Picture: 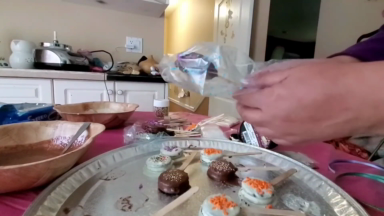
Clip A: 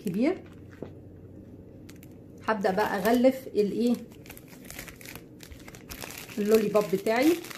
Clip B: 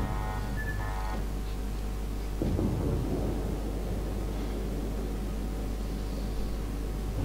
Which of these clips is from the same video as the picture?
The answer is A